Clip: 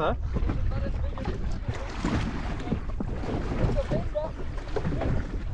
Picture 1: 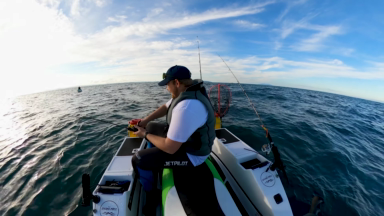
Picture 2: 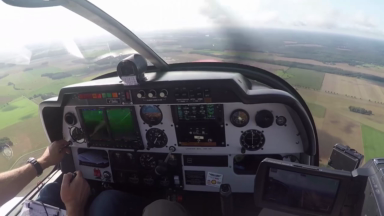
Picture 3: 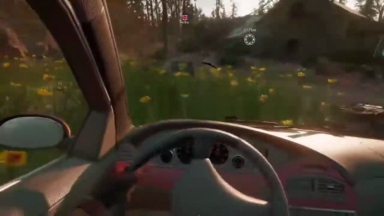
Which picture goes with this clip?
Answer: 1